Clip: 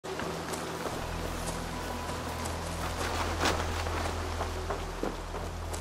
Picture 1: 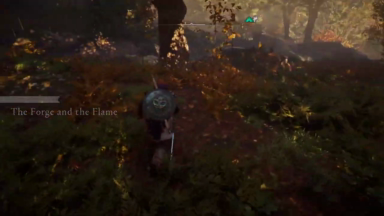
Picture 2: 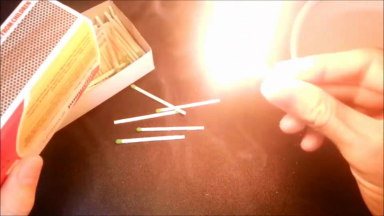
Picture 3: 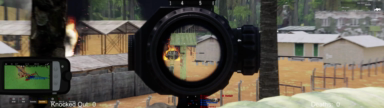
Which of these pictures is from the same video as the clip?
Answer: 1